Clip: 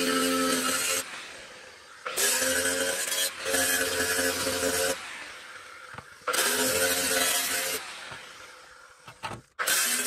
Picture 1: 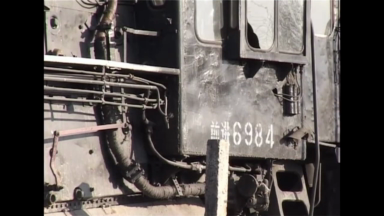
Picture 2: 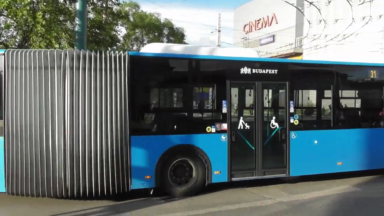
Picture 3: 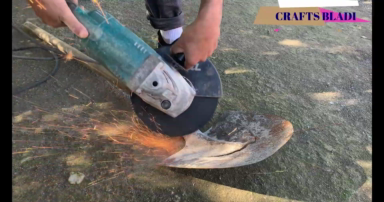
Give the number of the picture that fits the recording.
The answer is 3